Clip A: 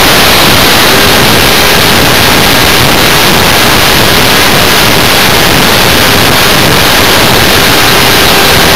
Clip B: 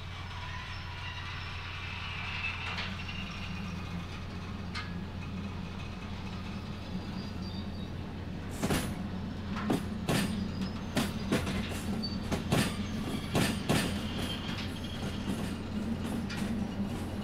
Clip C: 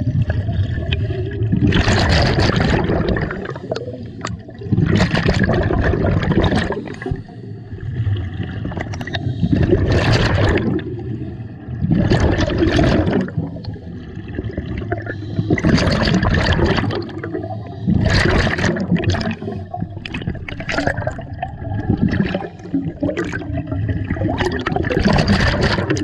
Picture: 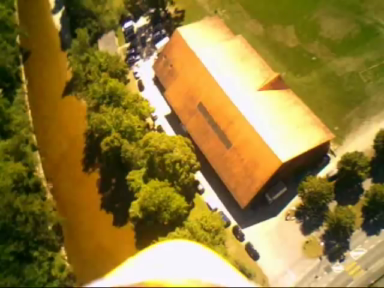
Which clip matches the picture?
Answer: A